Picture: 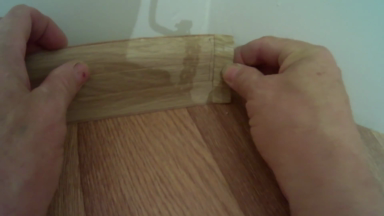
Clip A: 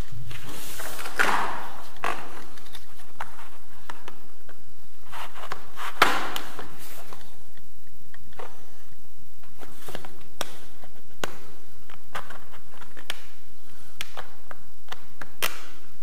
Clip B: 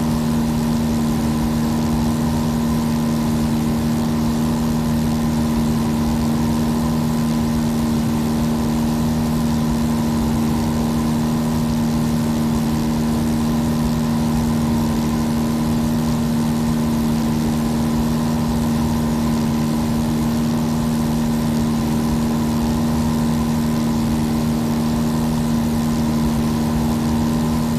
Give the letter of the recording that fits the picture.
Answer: A